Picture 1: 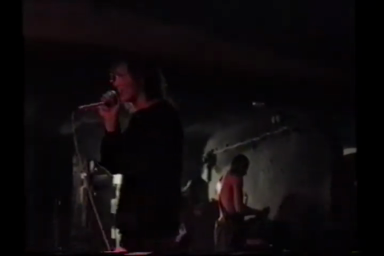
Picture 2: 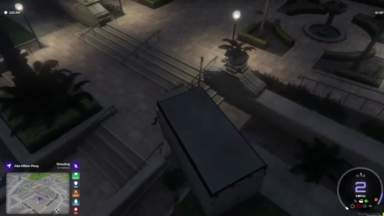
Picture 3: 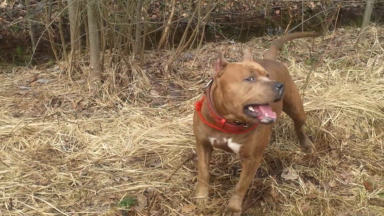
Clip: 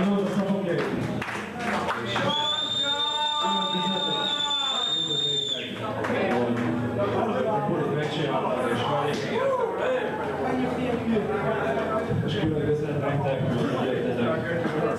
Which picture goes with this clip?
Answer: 1